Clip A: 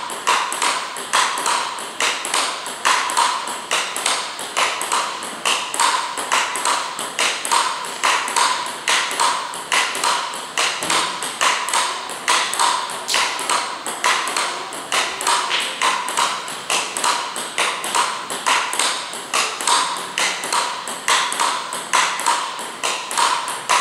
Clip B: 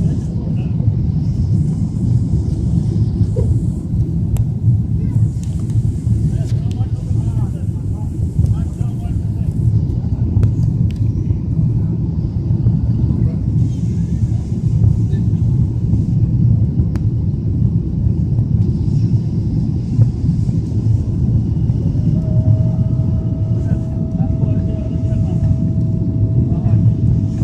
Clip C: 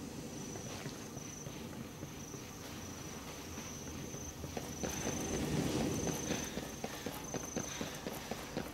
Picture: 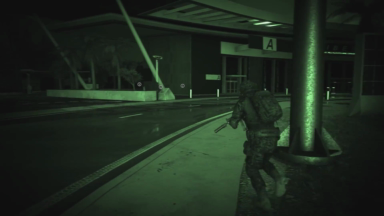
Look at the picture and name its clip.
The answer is C